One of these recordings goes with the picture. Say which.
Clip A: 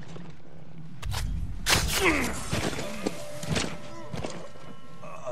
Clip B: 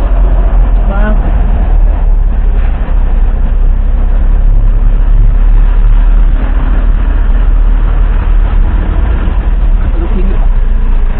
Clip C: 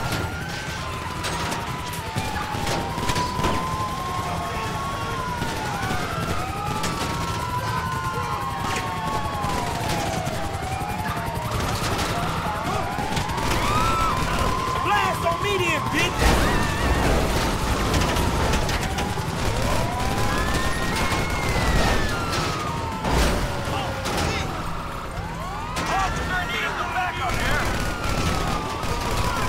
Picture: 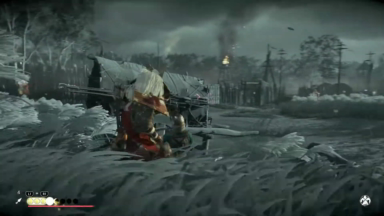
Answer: A